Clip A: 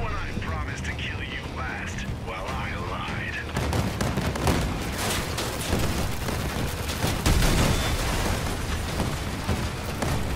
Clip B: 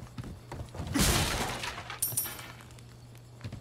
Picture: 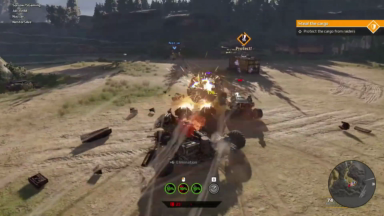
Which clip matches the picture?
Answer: A